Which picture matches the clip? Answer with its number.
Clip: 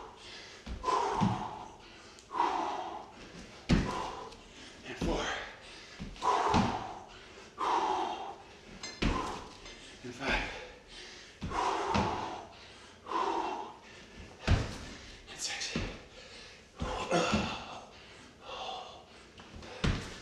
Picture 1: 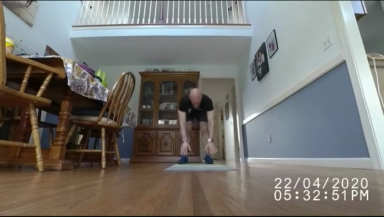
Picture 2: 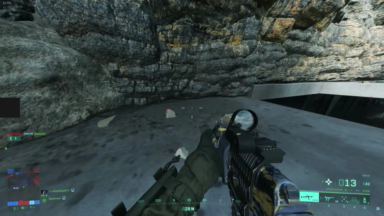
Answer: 1